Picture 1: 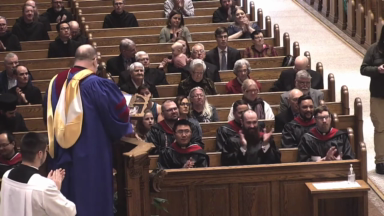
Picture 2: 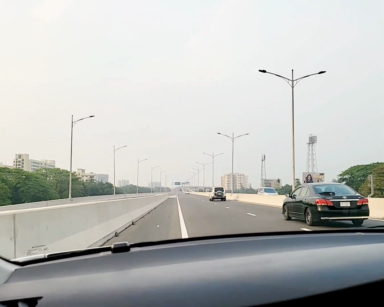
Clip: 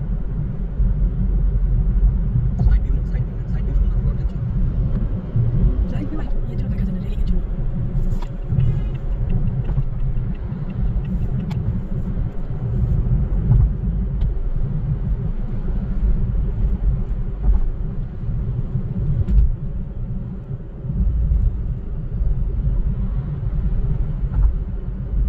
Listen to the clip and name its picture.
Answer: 2